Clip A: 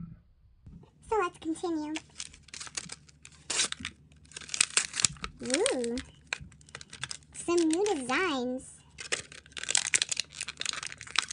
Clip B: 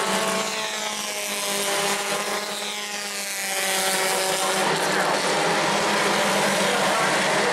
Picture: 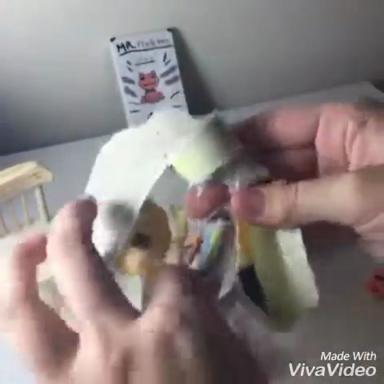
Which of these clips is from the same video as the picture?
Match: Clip A